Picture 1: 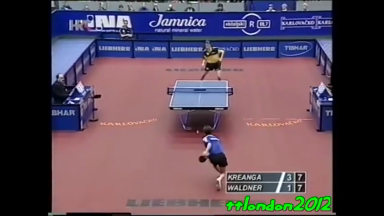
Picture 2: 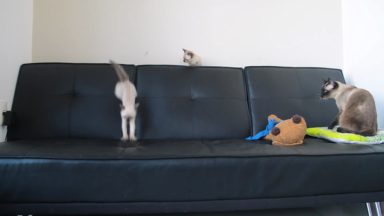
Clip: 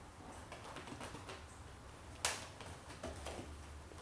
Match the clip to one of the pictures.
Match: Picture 2